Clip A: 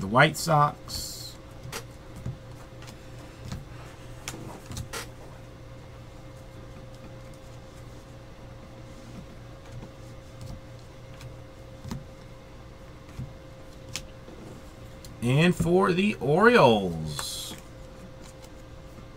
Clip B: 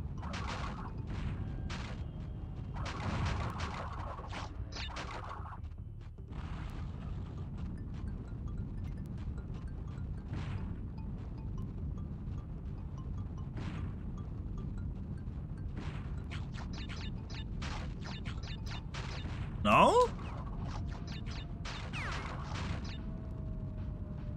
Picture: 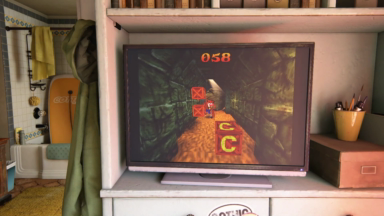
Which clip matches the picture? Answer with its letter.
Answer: B